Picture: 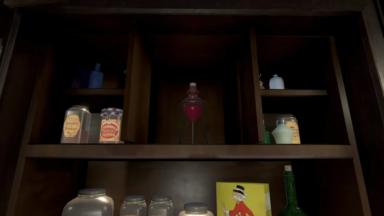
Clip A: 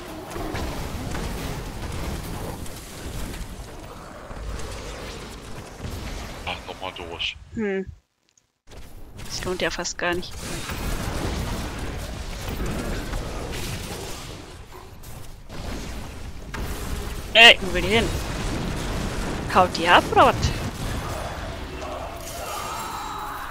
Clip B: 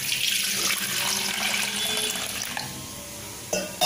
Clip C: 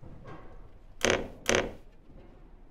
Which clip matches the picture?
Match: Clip C